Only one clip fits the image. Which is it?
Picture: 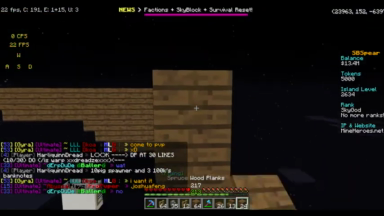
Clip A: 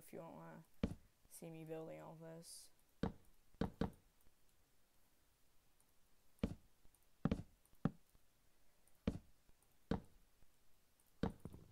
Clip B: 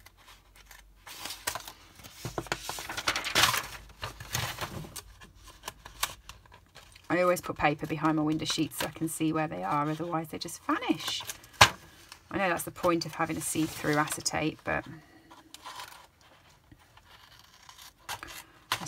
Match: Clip A